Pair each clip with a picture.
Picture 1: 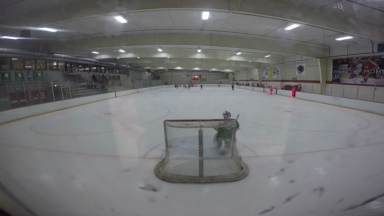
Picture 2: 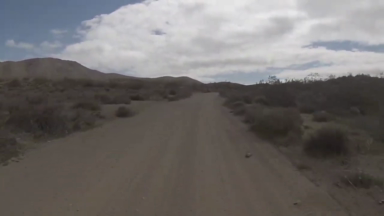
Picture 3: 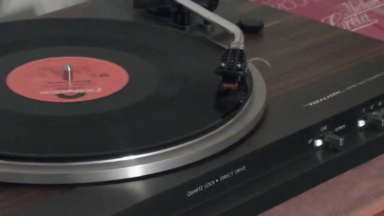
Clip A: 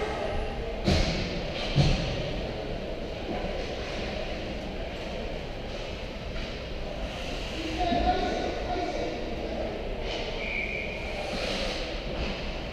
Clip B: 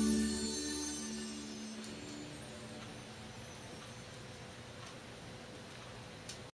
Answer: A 1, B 3